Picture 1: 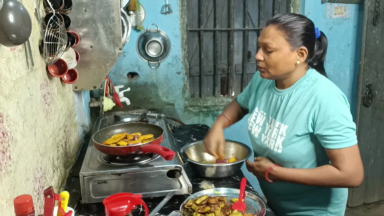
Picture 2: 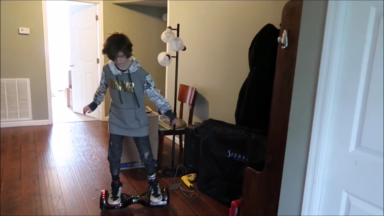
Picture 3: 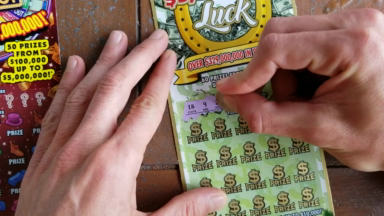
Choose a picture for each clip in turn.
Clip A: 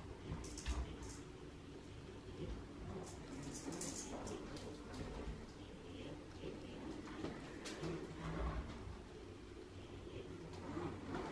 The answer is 2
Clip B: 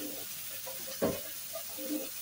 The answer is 1